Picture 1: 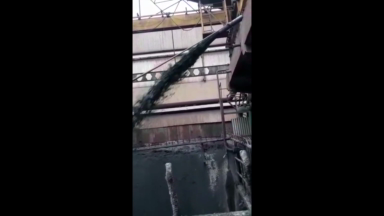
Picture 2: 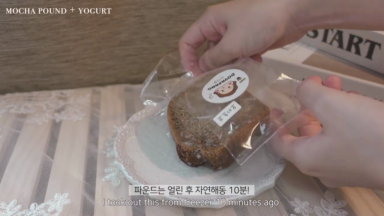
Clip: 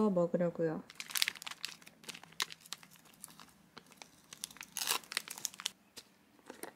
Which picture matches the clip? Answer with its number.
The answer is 2